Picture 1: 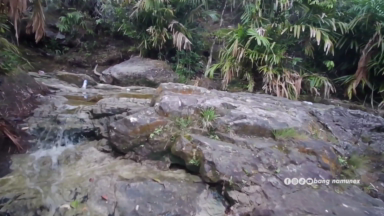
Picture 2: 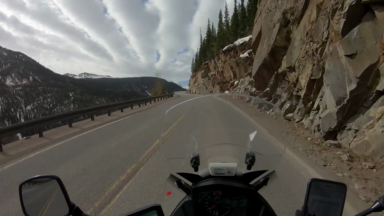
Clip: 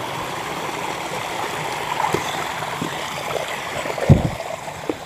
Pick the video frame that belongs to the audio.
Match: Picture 1